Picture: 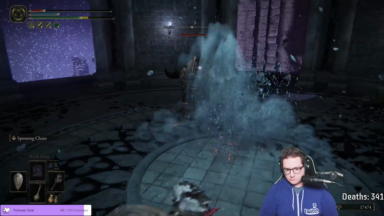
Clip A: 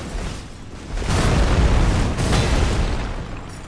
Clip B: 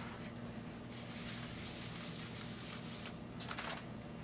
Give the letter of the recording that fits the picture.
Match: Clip A